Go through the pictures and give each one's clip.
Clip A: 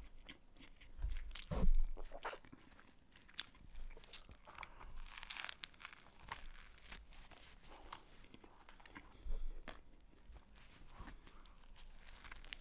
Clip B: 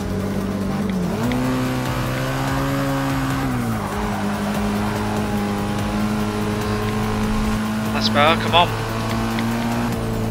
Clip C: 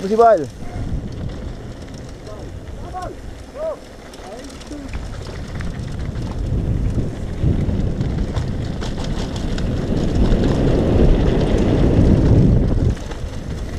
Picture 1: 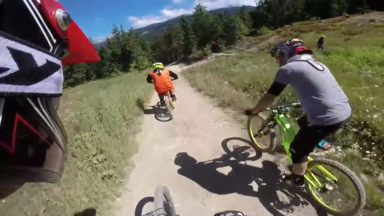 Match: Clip C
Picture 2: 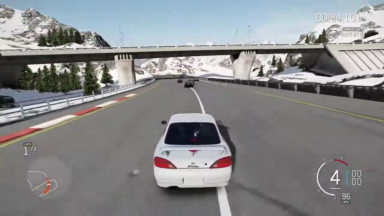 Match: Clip B